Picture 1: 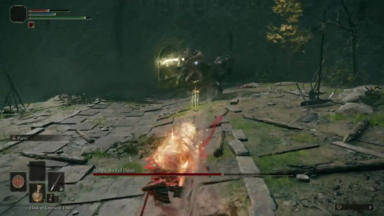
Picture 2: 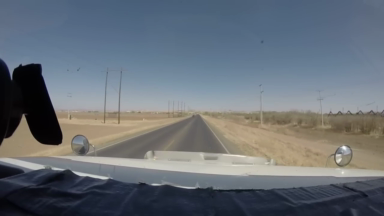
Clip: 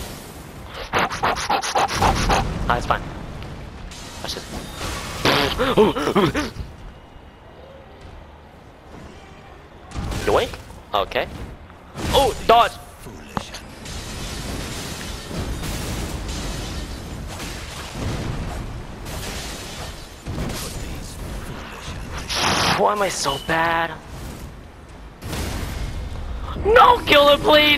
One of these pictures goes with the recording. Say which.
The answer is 1